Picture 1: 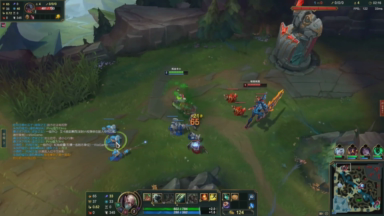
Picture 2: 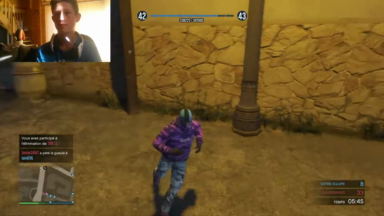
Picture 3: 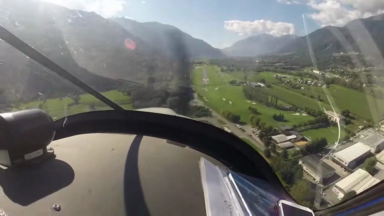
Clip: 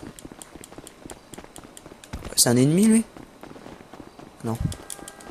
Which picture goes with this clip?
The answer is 2